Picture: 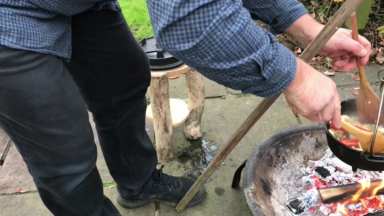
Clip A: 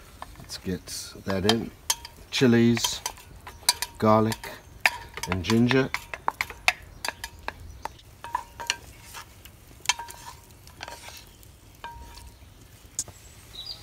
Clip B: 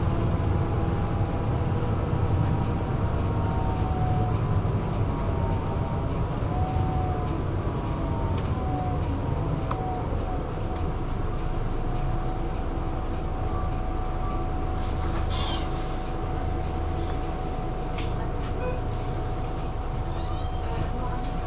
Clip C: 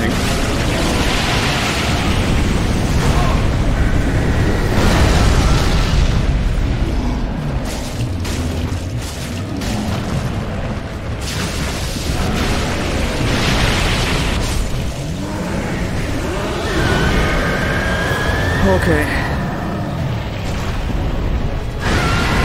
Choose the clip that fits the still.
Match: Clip A